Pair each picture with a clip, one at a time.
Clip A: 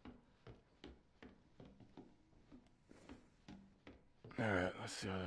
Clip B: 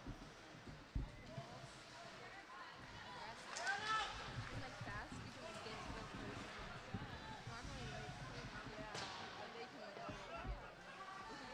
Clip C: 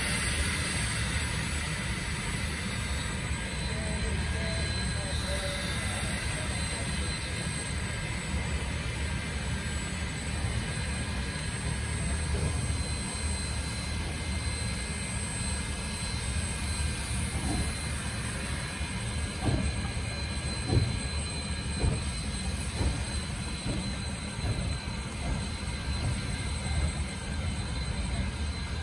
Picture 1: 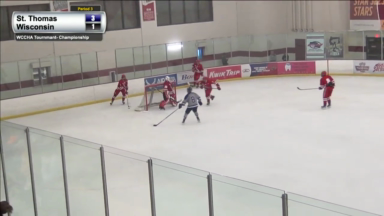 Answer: B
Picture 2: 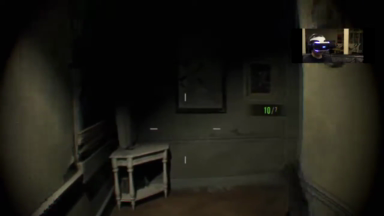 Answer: A